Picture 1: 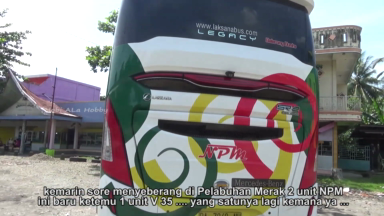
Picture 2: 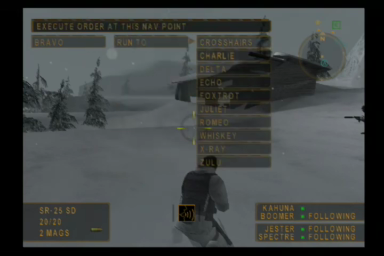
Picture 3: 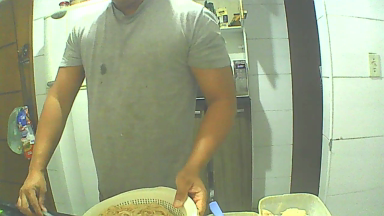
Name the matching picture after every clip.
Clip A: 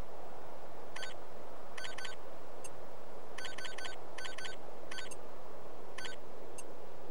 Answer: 2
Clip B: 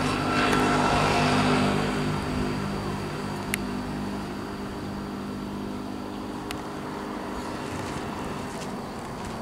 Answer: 1